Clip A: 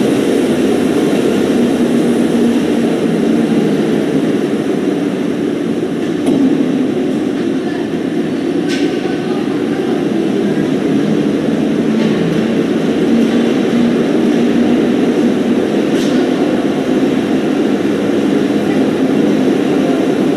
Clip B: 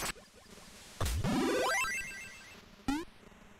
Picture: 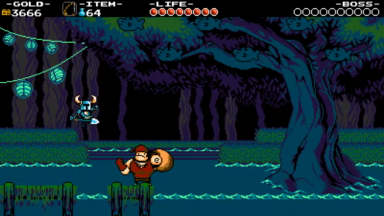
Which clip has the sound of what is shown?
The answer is B